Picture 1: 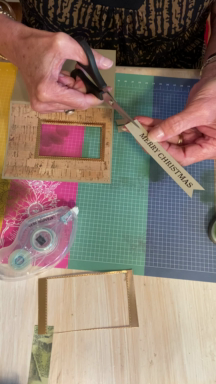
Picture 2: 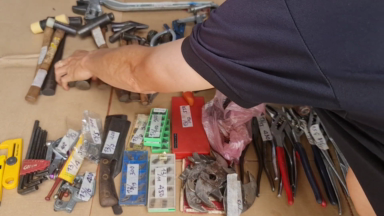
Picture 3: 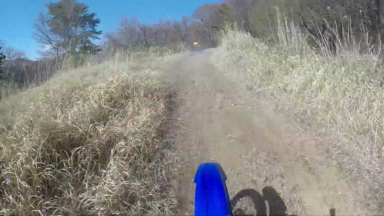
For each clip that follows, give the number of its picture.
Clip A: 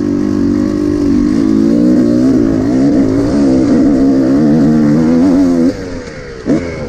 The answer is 3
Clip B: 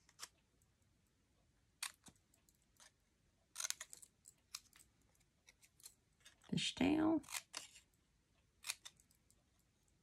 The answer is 1